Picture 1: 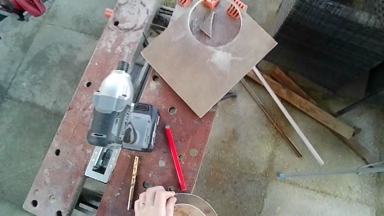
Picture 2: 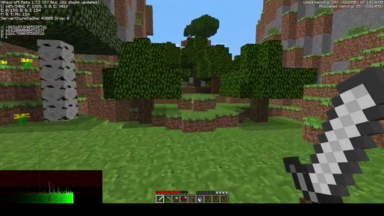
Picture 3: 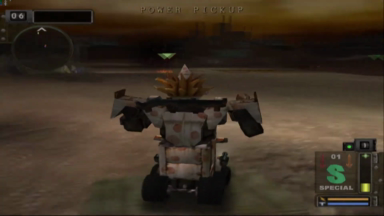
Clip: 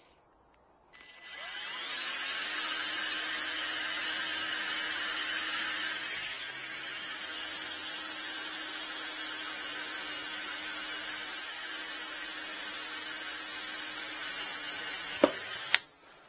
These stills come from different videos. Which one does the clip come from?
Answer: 1